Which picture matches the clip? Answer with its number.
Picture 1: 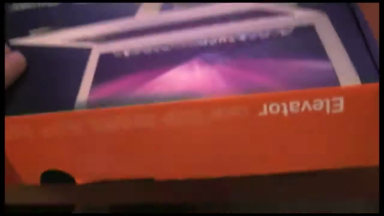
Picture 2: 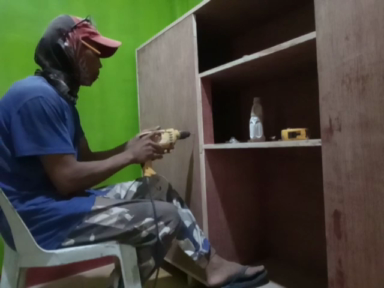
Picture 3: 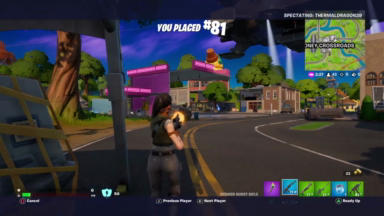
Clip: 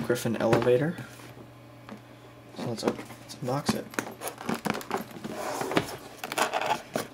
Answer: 1